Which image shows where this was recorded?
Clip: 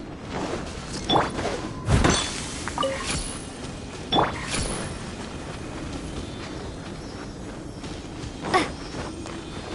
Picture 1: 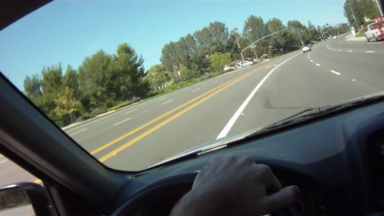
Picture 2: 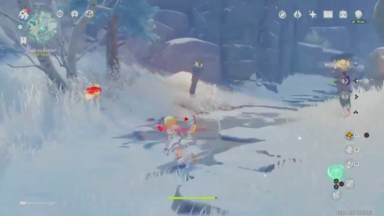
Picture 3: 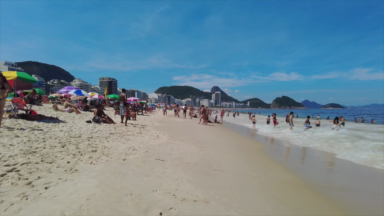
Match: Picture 2